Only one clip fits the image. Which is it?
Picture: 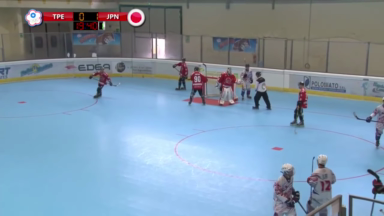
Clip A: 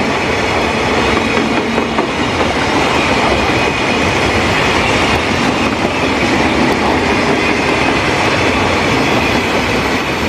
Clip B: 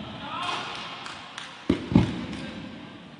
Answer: B